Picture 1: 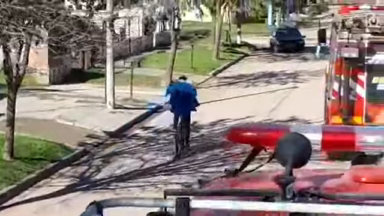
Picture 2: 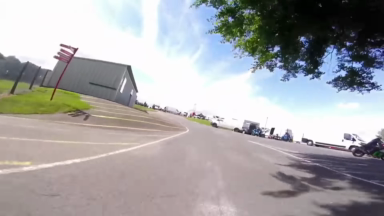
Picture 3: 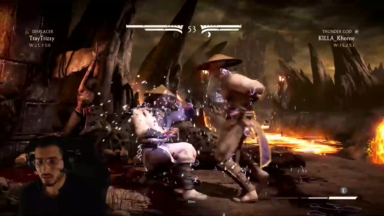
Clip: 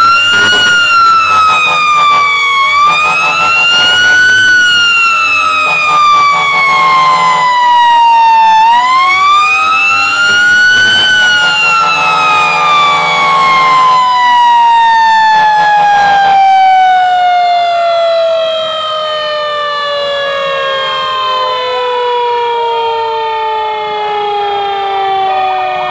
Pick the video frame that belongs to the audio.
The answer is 1